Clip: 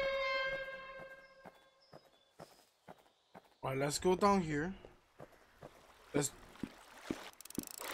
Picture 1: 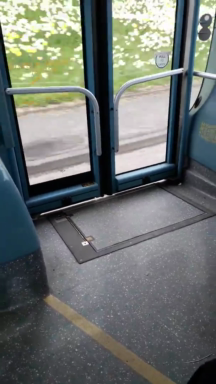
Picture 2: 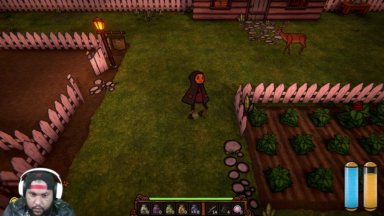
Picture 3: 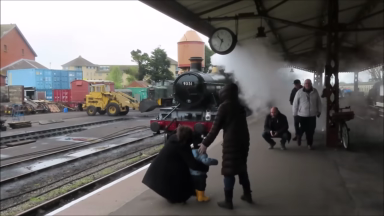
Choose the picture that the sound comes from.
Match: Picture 2